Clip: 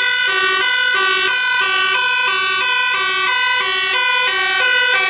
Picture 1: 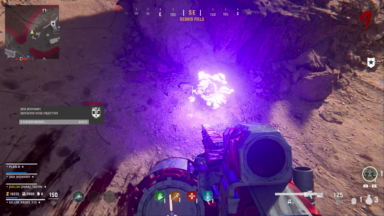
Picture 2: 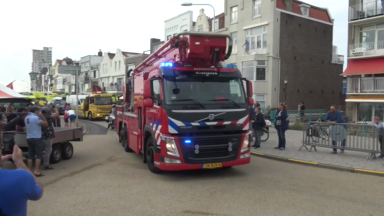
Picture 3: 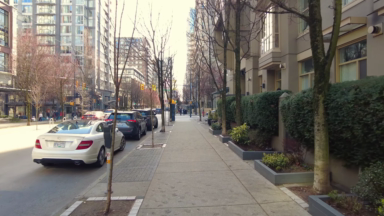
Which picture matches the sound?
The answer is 2